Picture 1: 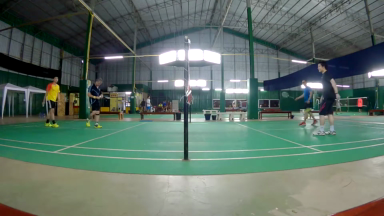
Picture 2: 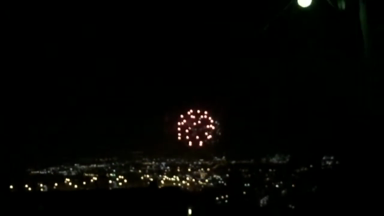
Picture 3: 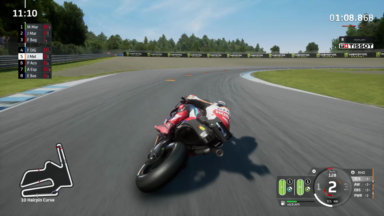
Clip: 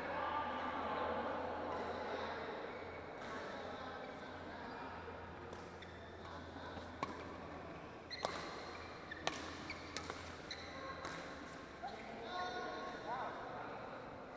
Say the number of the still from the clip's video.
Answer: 1